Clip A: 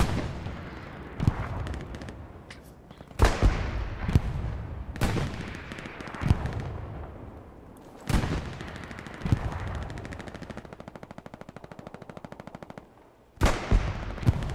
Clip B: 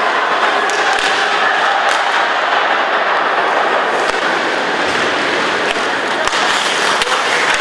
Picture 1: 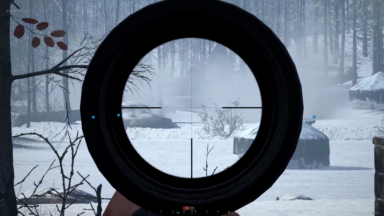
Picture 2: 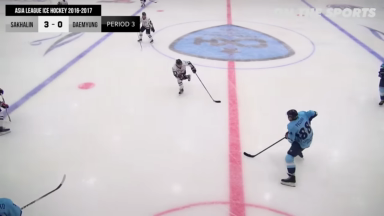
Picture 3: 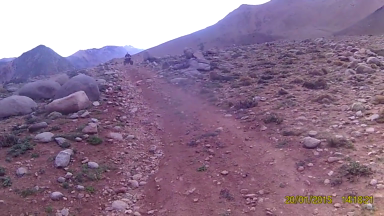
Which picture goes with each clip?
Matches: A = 1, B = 2